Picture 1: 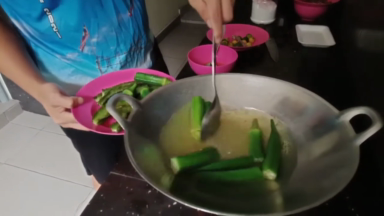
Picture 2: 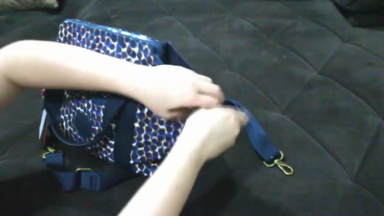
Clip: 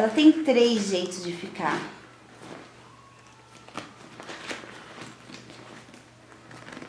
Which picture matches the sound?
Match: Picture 2